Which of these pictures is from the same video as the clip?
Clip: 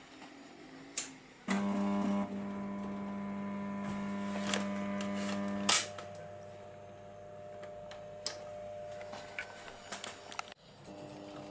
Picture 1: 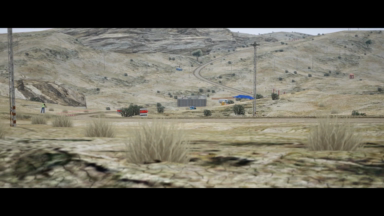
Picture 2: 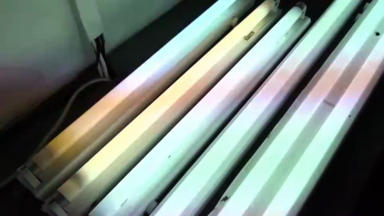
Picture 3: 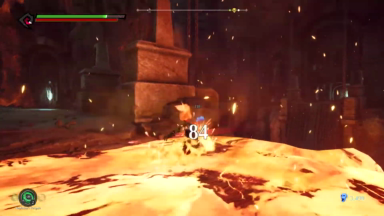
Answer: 2